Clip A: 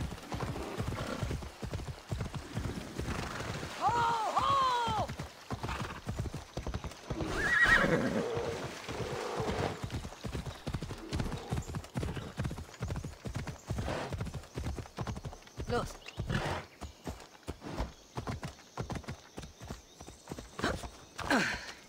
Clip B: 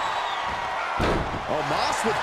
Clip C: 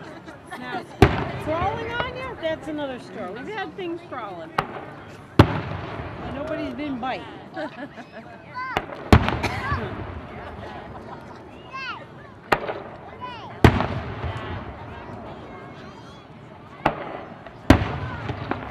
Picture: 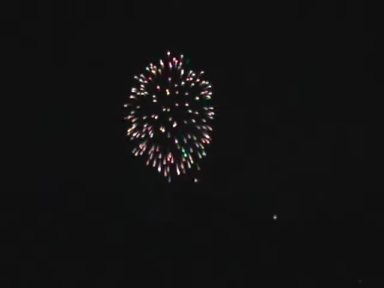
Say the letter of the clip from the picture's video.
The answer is C